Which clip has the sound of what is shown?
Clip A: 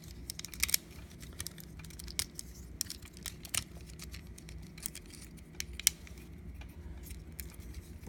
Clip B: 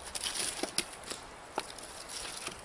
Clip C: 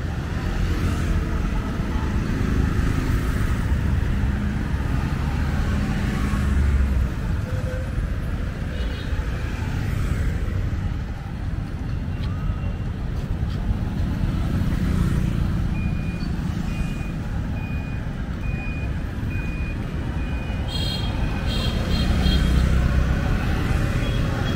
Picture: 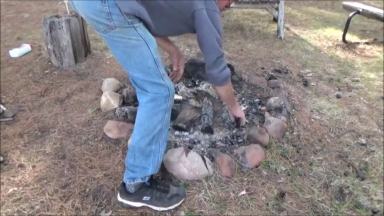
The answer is B